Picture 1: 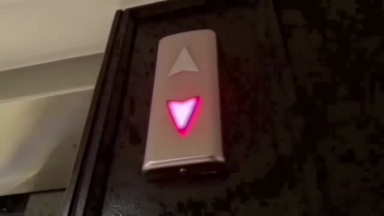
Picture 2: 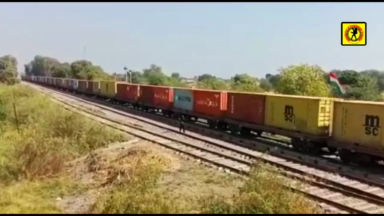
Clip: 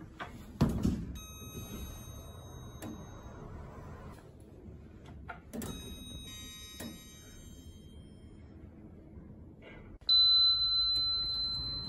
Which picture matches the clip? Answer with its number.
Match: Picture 1